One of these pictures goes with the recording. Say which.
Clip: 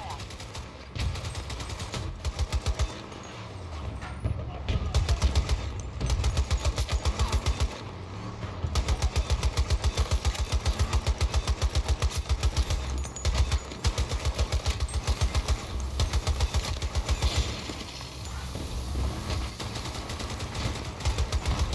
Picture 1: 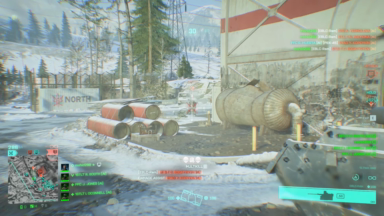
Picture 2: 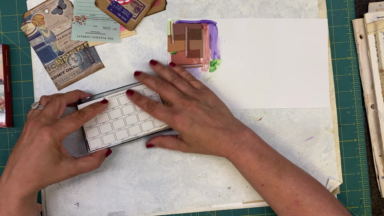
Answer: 1